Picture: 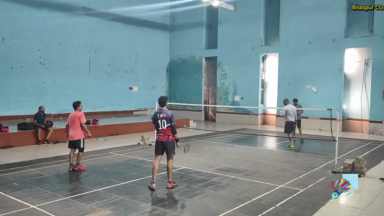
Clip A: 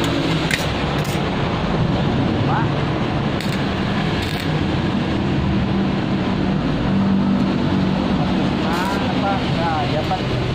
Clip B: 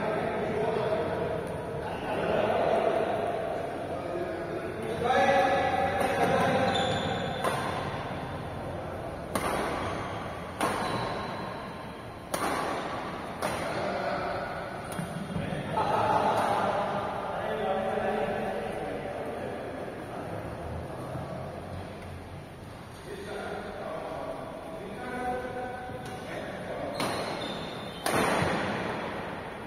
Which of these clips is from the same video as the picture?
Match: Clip B